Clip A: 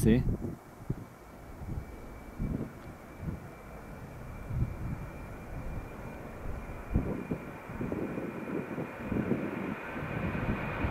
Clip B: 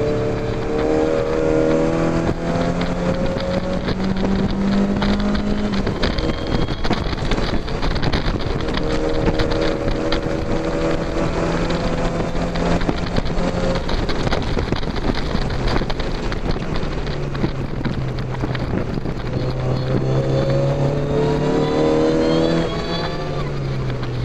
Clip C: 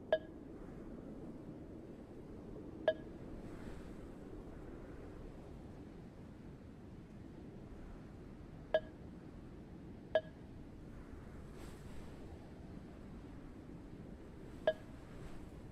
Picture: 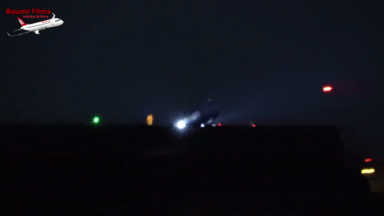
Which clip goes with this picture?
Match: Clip A